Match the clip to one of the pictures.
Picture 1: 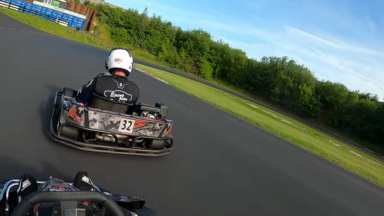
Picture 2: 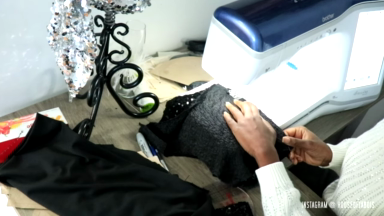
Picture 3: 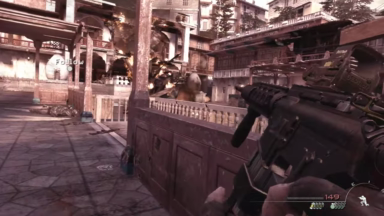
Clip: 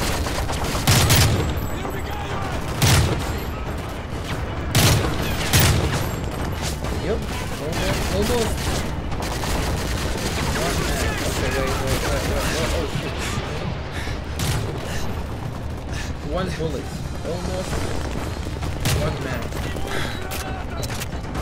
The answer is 3